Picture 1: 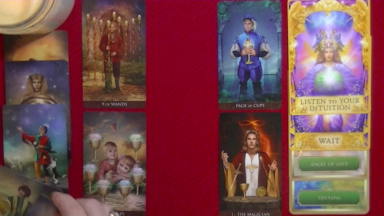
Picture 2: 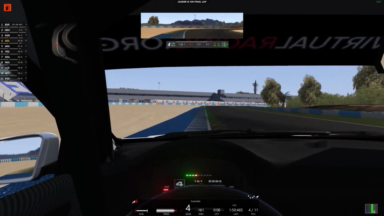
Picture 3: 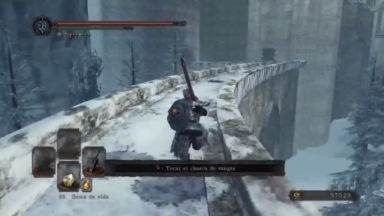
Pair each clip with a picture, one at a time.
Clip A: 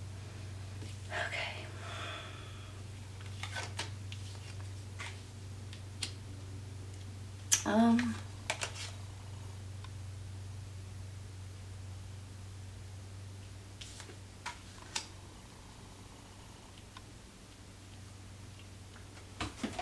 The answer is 1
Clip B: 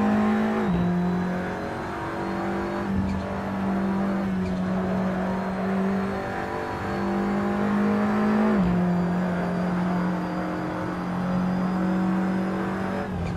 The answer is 2